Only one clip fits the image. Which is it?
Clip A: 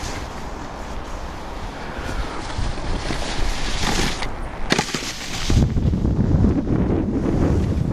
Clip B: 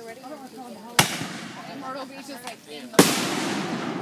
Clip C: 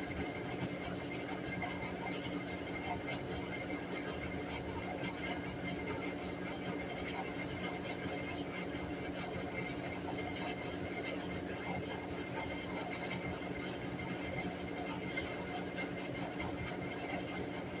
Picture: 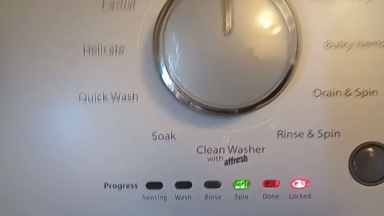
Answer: C